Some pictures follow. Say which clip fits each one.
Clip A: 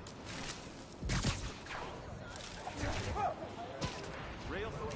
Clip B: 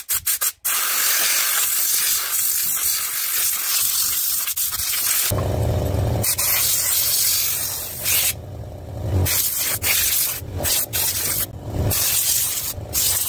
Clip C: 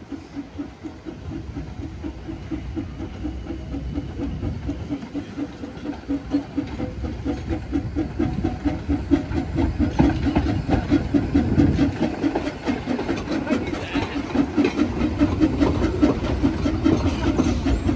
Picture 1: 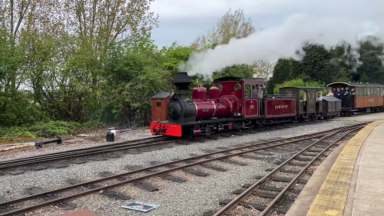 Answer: C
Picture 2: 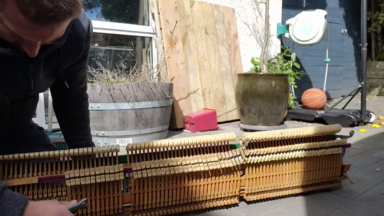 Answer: B